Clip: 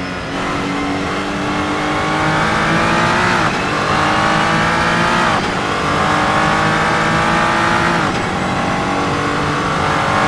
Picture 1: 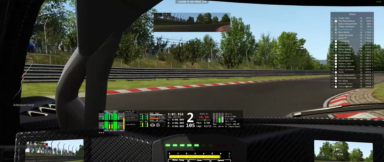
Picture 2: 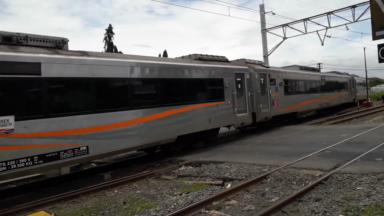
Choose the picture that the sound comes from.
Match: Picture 1